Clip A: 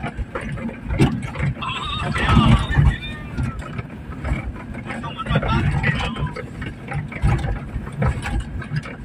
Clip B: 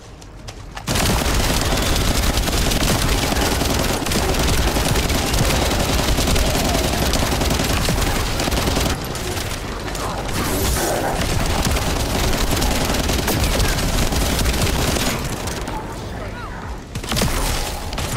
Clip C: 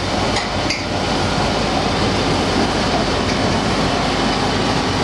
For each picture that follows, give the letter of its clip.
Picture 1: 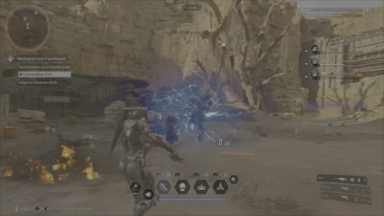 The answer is B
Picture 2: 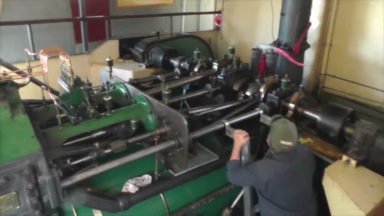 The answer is C